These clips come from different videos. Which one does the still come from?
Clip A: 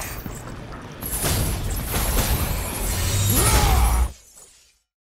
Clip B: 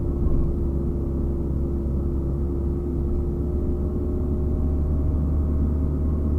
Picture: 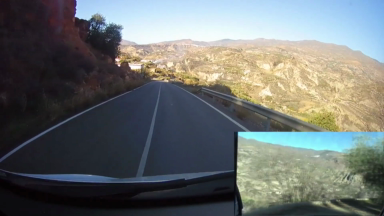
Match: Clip B